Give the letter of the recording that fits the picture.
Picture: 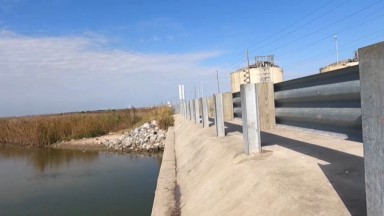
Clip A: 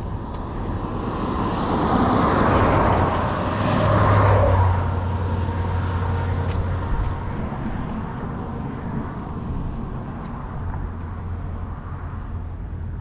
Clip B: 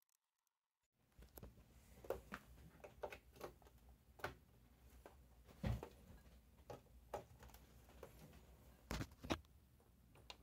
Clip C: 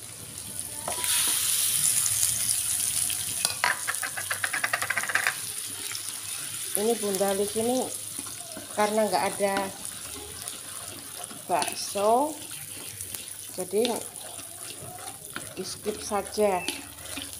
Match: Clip A